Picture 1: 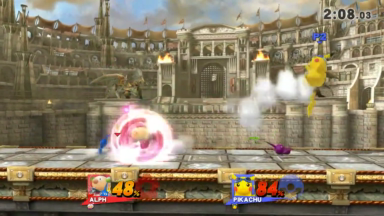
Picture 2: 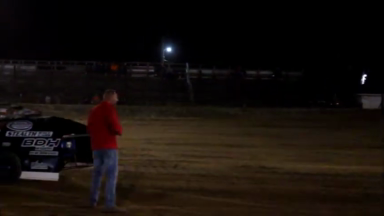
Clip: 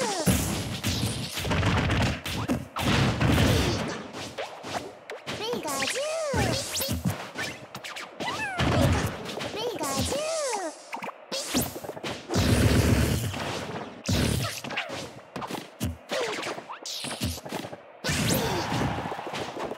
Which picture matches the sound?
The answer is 1